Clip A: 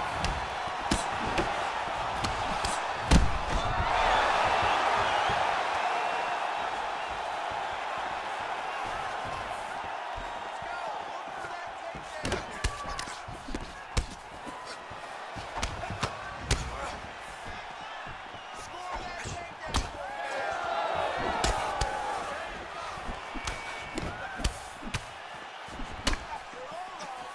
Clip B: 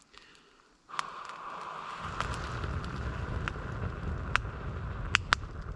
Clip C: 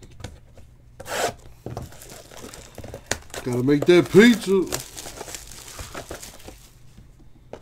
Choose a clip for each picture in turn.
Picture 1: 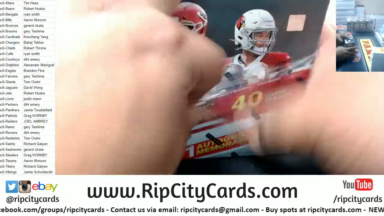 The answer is C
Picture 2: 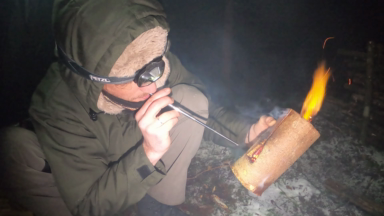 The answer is B